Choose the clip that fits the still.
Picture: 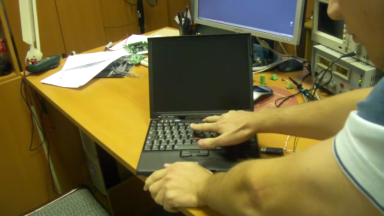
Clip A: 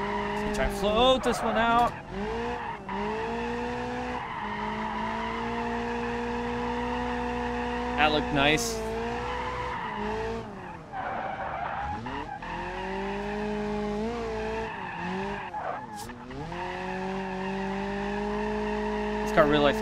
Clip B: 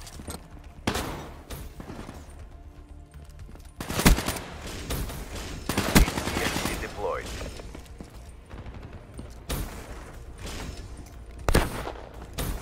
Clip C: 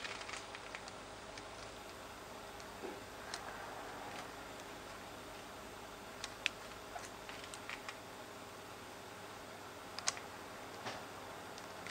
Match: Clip C